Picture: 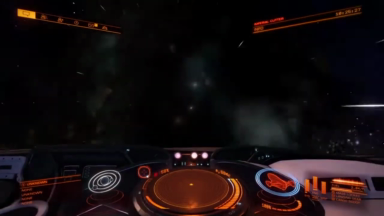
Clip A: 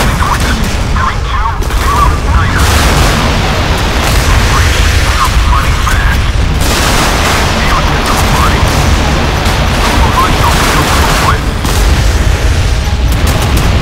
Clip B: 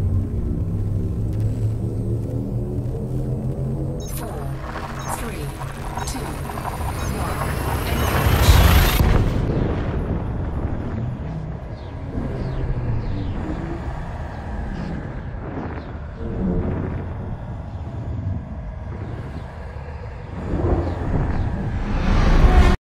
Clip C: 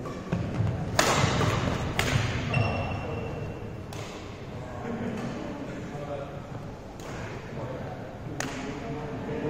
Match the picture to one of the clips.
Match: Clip B